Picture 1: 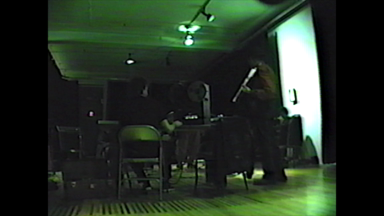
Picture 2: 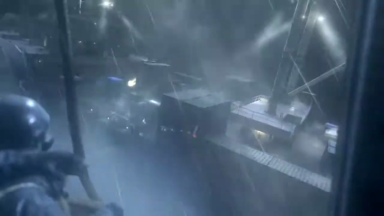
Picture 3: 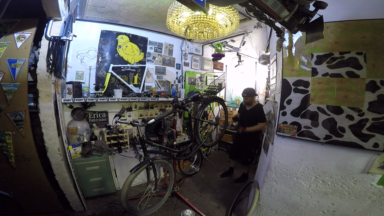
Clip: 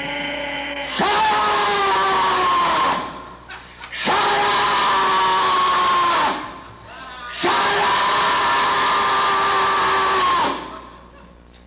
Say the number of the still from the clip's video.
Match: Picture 1